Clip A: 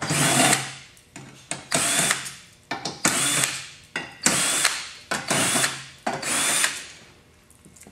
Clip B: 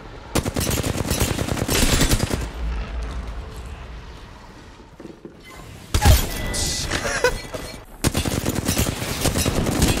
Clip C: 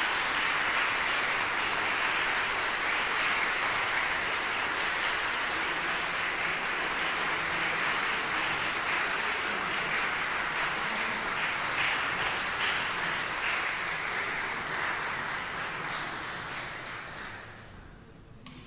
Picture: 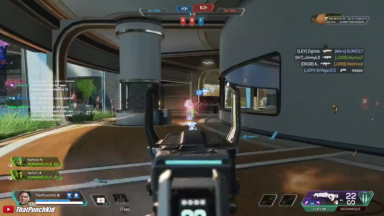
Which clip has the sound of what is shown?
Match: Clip B